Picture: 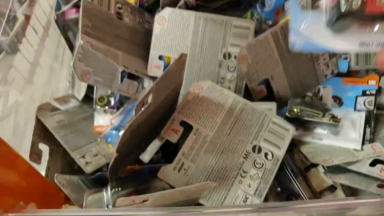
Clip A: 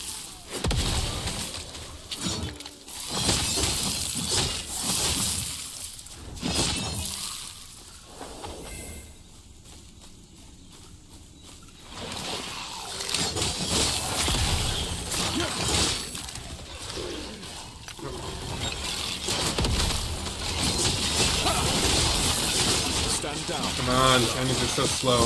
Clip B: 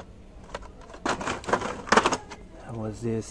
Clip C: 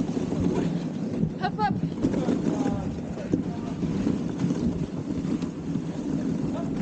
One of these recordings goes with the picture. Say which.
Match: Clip B